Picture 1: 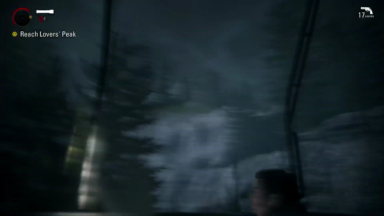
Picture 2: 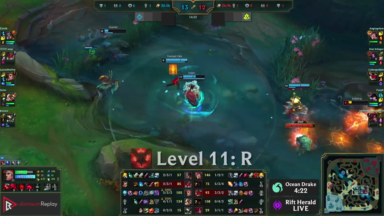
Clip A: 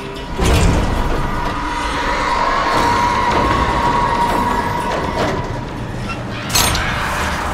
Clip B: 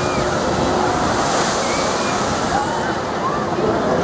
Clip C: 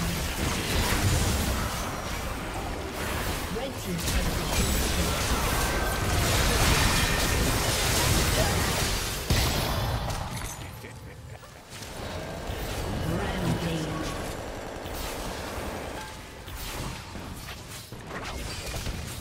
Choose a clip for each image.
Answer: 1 A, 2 C